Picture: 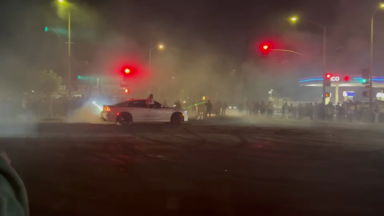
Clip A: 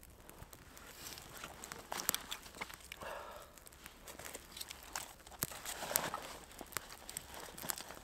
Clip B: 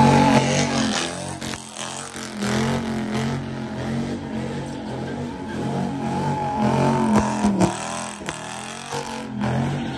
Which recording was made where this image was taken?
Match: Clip B